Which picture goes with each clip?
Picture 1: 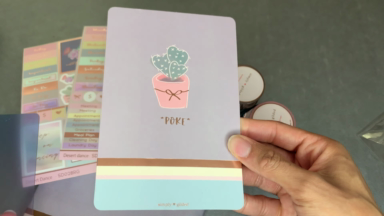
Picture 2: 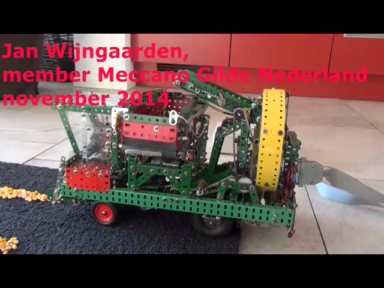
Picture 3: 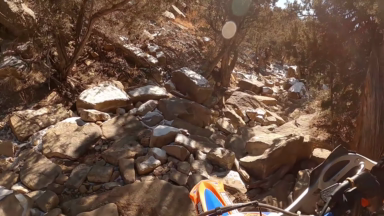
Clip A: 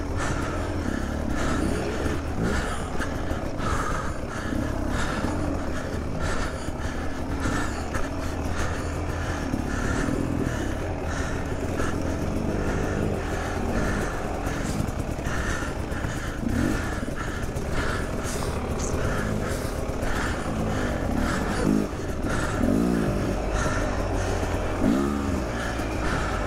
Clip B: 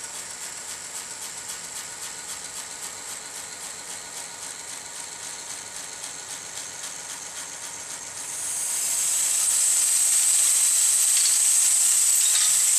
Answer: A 3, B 2